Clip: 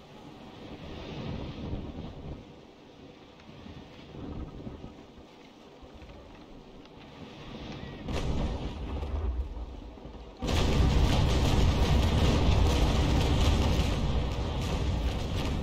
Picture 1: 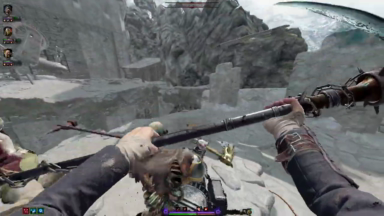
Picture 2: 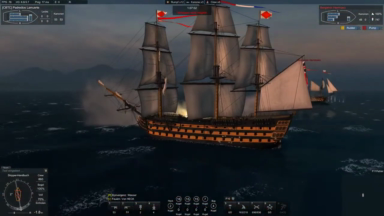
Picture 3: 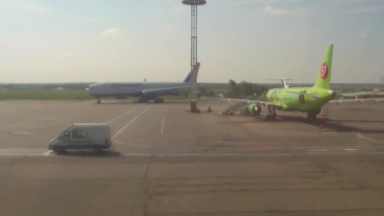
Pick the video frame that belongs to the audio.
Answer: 2